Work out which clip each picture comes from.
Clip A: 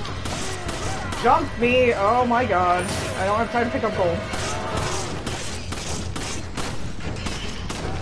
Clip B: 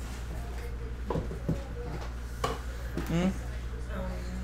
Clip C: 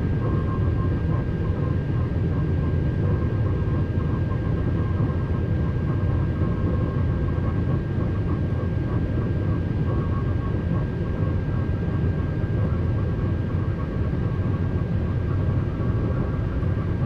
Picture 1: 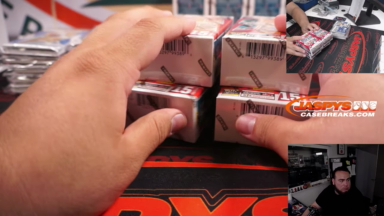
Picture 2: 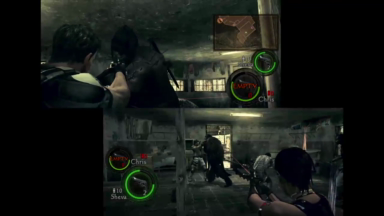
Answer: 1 B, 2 A